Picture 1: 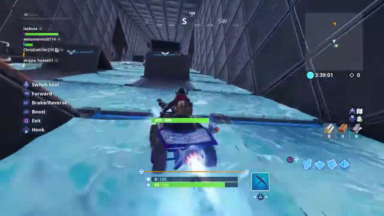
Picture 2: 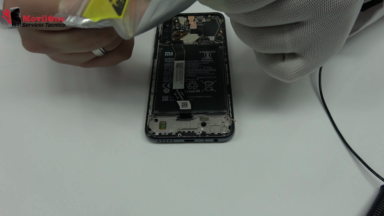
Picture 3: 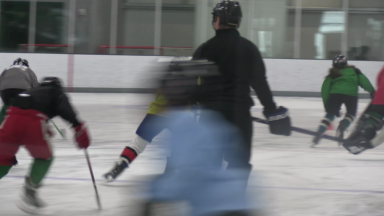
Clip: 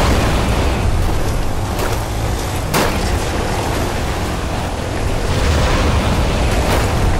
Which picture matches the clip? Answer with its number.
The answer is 1